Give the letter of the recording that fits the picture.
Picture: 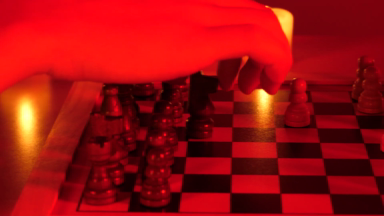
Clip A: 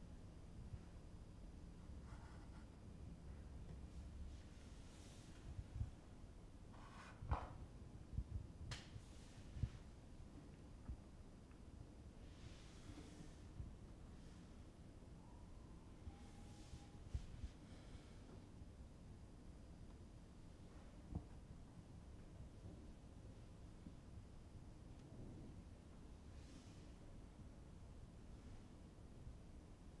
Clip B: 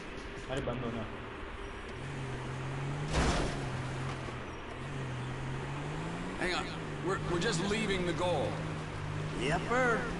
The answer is A